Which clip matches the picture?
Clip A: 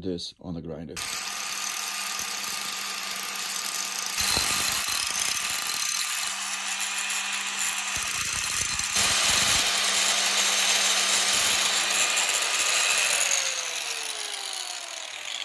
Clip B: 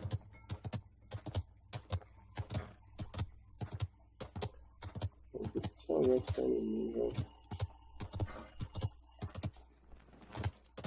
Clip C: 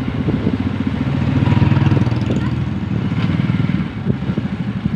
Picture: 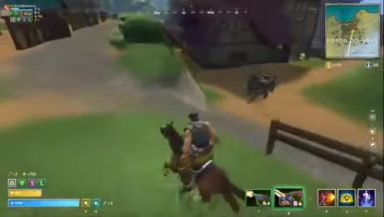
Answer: B